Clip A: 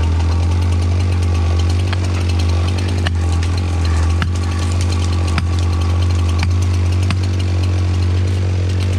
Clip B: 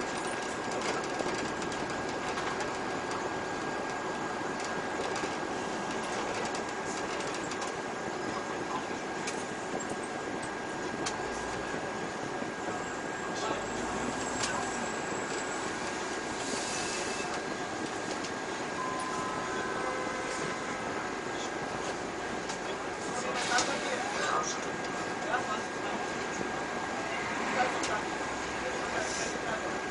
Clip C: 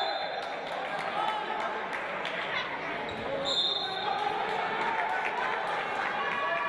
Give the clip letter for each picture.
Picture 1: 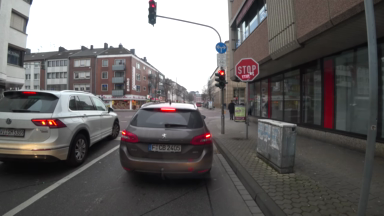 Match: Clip B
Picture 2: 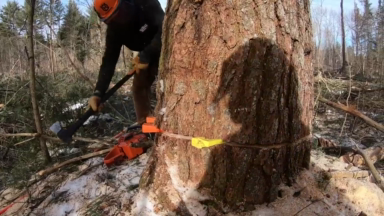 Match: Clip A